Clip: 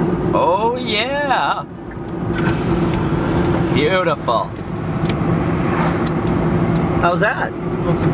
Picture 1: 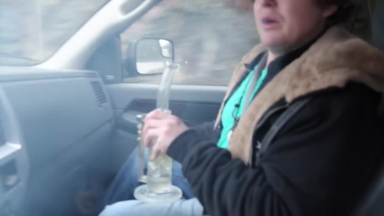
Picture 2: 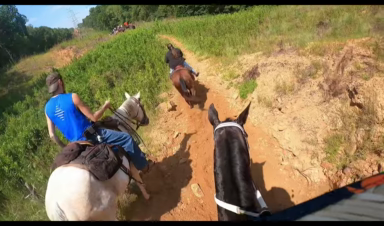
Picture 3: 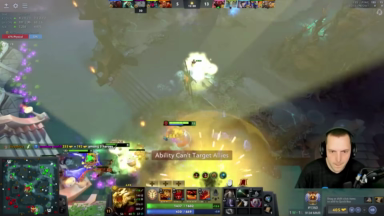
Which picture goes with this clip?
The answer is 1